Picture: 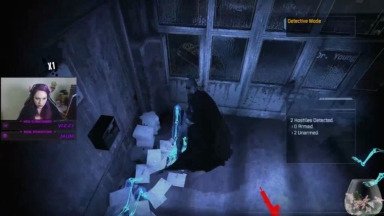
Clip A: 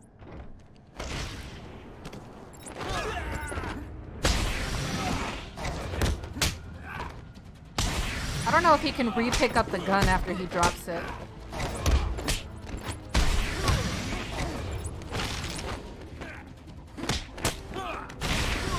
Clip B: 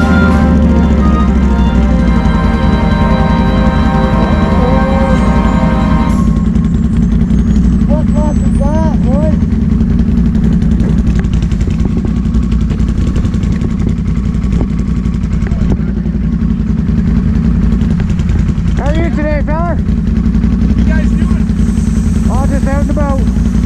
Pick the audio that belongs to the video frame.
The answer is A